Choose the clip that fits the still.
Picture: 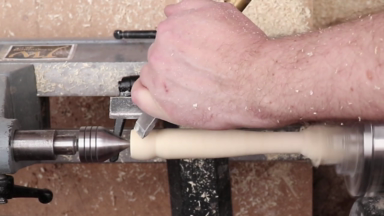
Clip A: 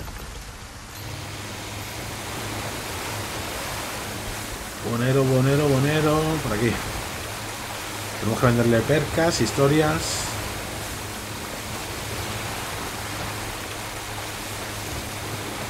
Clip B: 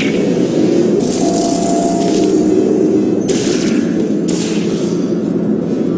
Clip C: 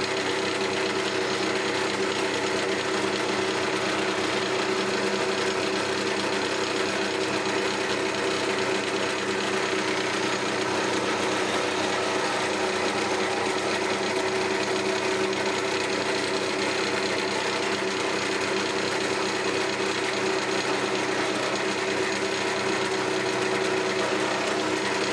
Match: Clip C